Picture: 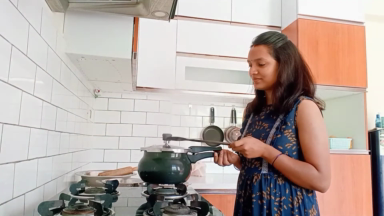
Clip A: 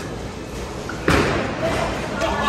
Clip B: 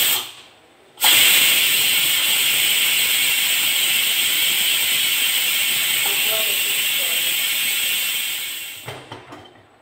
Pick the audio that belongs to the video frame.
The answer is B